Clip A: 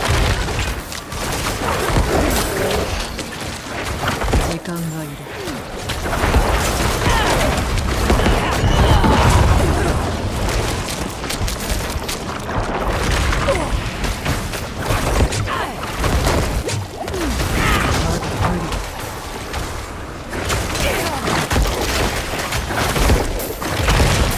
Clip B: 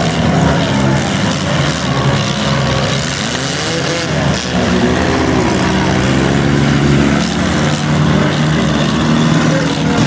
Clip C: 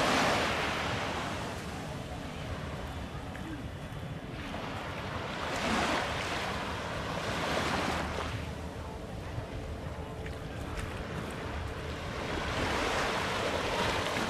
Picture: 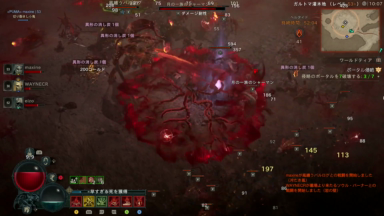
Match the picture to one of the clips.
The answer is A